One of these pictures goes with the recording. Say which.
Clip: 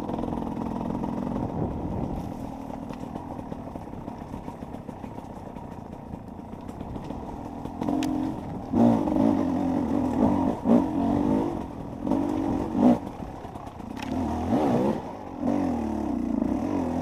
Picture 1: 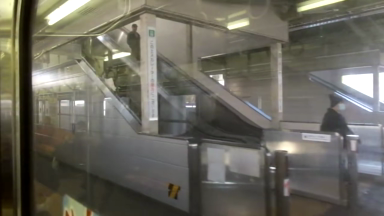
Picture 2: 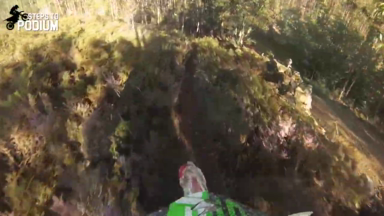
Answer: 2